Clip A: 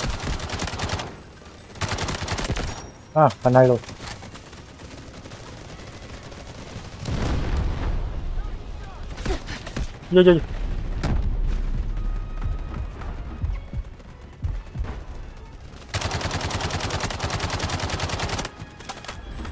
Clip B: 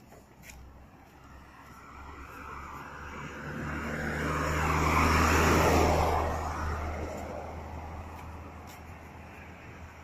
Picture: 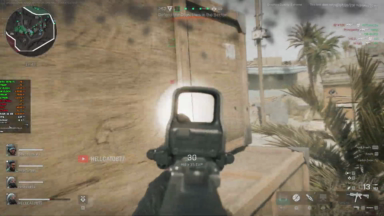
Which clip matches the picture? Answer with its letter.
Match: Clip A